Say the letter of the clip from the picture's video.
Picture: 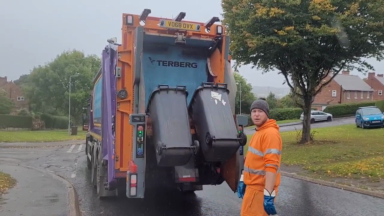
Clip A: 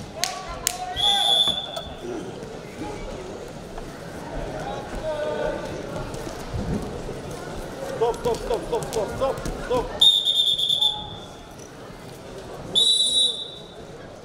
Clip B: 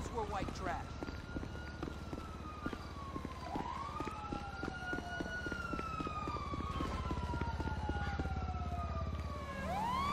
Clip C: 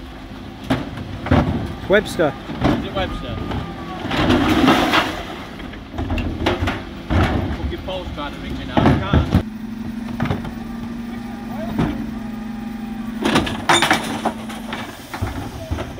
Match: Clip C